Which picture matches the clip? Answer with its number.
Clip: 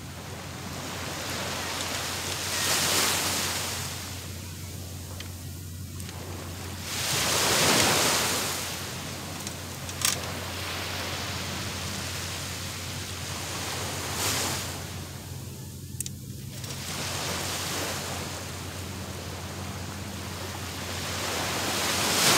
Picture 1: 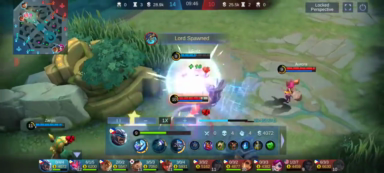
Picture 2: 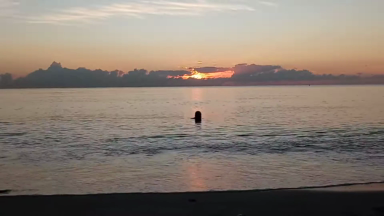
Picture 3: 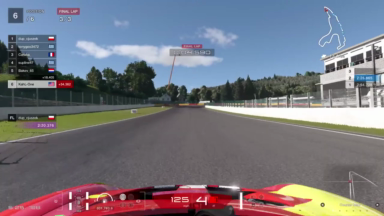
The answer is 2